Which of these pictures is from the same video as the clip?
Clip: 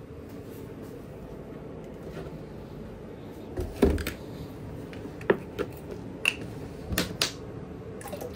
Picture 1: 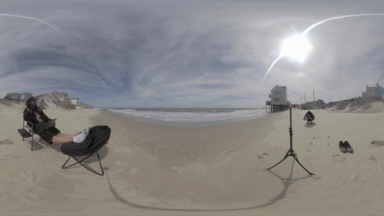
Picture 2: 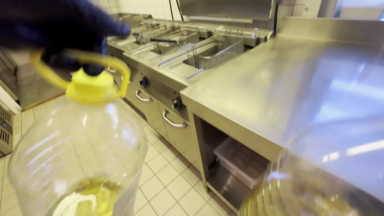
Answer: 2